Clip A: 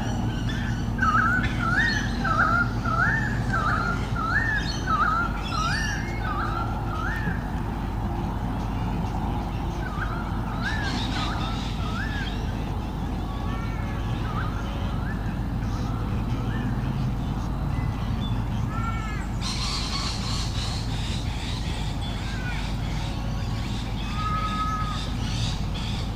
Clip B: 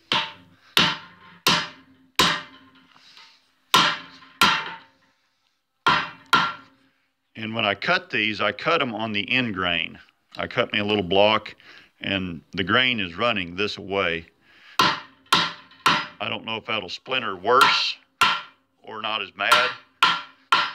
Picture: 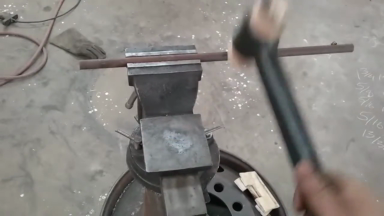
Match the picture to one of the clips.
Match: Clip B